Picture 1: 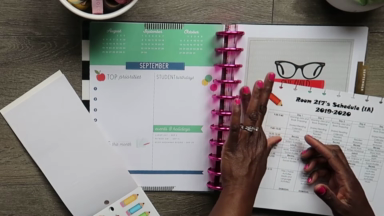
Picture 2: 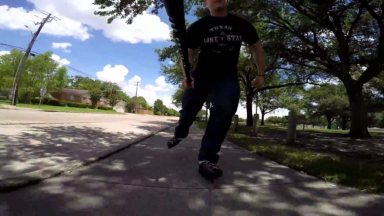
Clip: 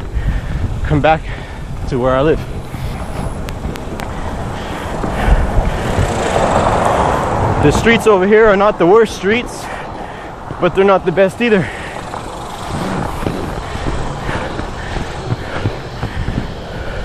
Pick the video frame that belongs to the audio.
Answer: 2